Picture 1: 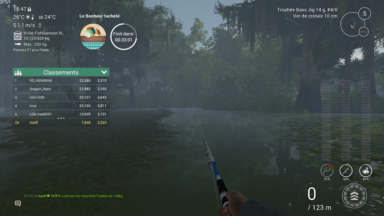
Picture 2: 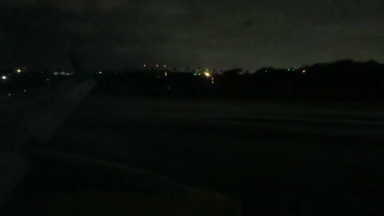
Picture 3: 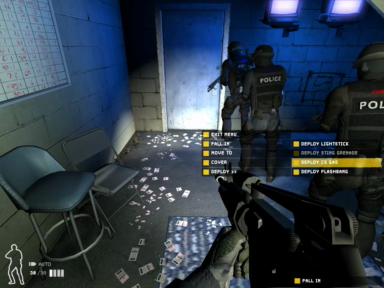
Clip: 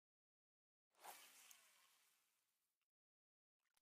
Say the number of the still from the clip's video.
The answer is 1